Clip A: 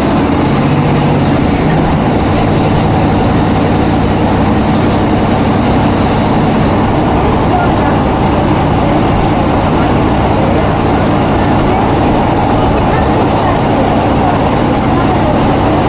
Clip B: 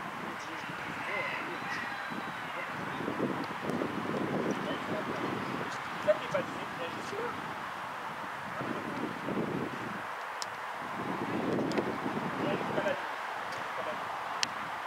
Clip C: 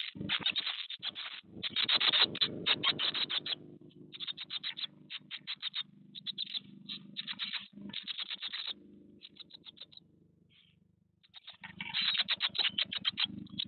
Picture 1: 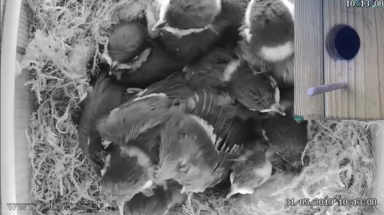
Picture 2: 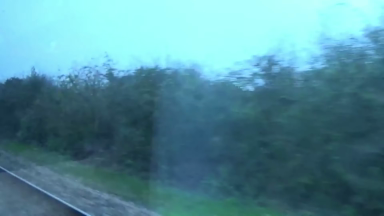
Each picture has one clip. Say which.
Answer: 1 C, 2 A